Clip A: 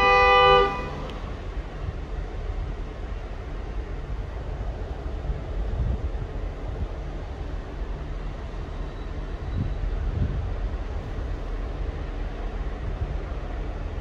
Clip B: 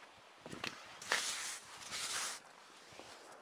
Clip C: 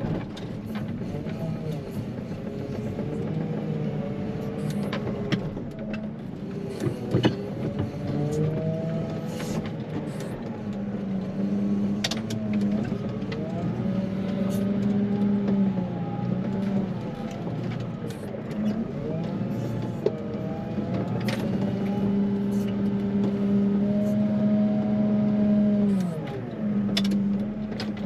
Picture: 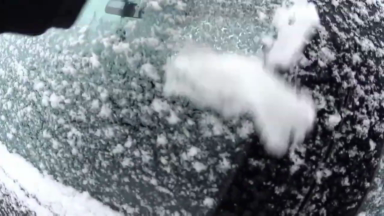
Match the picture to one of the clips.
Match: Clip B